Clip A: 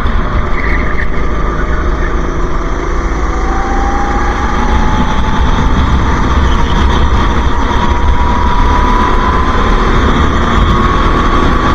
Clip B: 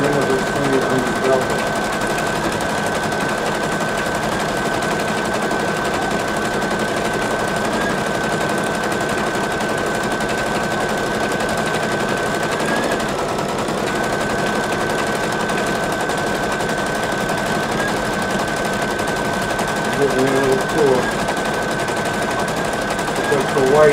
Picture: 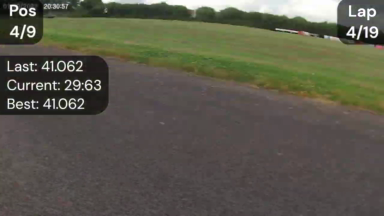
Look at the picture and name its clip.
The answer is A